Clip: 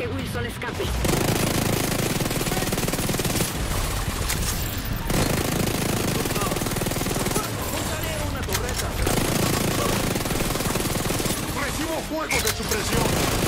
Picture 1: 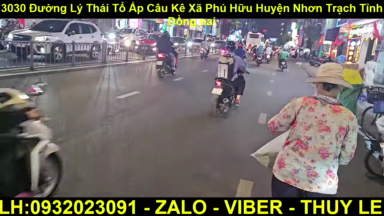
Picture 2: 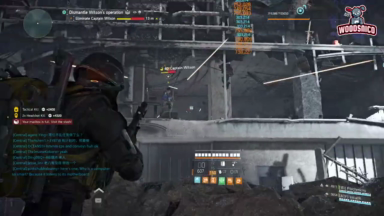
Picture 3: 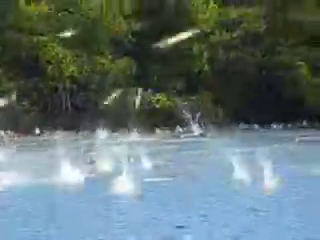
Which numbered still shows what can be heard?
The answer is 2